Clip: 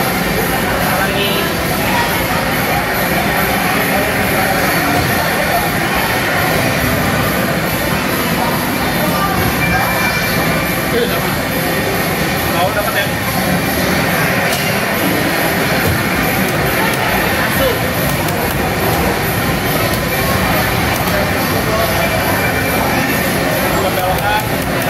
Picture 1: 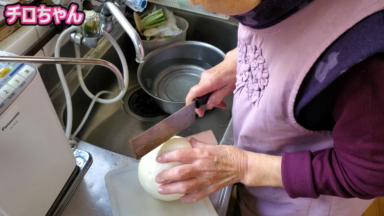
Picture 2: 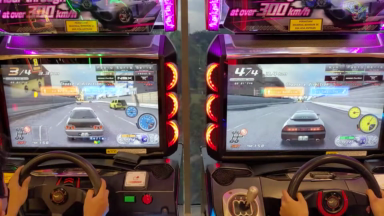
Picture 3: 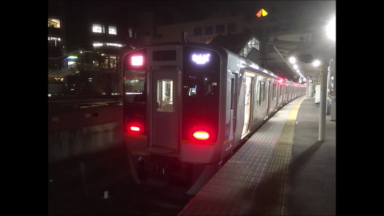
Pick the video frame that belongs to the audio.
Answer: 2